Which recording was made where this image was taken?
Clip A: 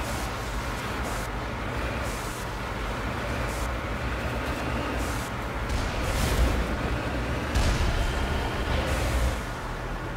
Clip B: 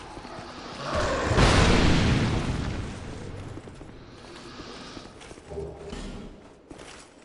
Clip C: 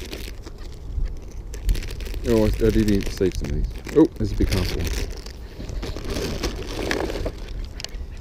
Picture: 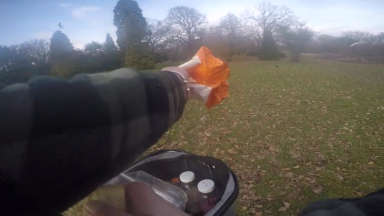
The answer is C